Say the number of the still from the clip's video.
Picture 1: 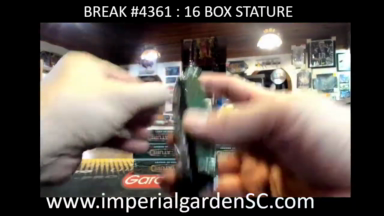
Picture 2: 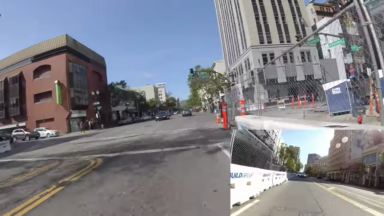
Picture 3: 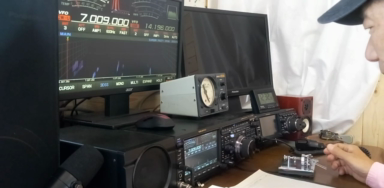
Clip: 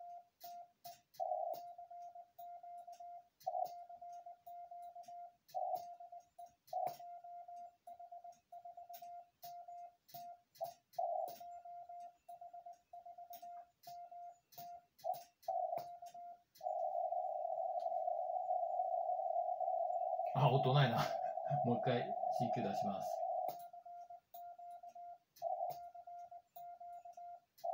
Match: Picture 3